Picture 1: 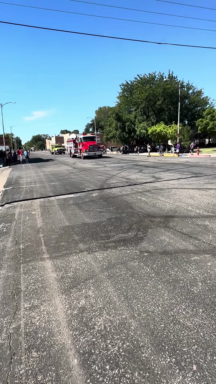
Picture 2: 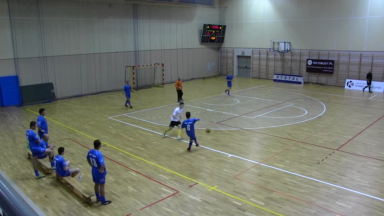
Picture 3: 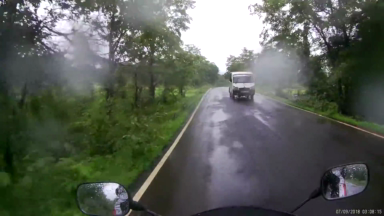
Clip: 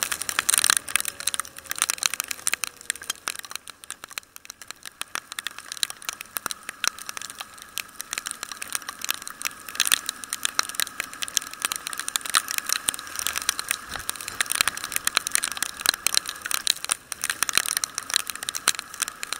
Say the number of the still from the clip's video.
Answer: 3